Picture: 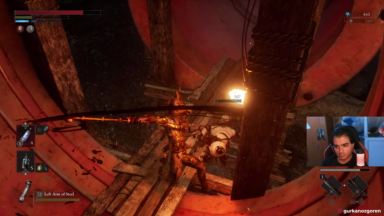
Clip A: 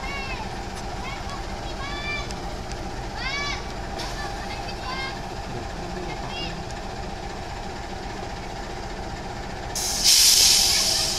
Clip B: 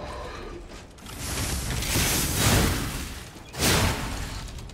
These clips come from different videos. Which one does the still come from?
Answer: B